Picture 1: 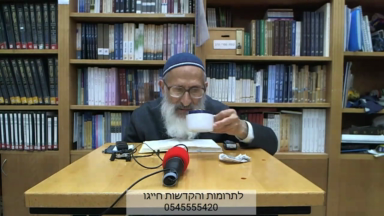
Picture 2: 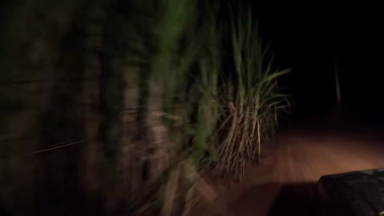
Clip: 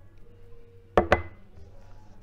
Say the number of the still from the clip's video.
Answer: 1